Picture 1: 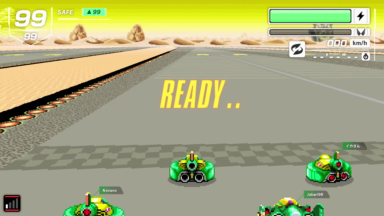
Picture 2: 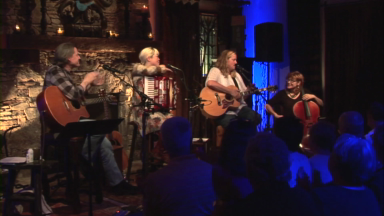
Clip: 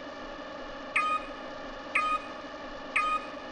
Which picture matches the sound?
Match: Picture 1